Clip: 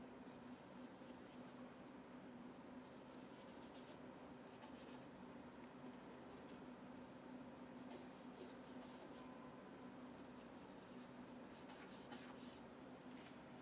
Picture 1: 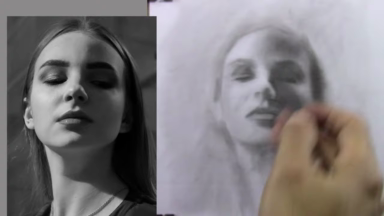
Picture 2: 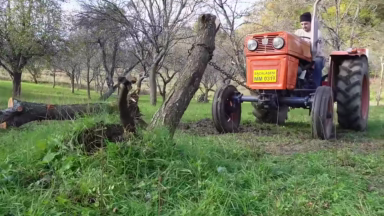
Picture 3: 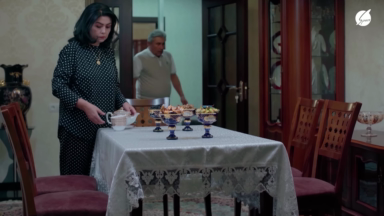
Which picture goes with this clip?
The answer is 1